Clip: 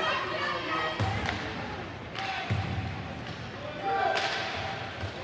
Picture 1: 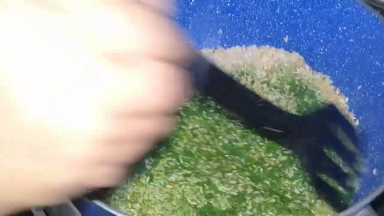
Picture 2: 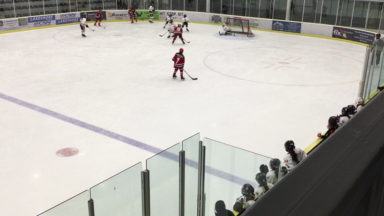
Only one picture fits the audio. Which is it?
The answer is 2